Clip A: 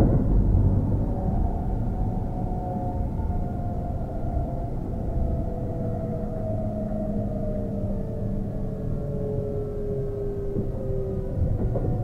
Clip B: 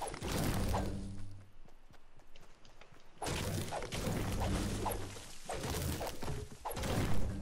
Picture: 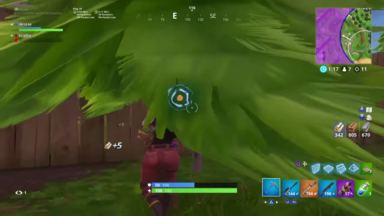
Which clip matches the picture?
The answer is B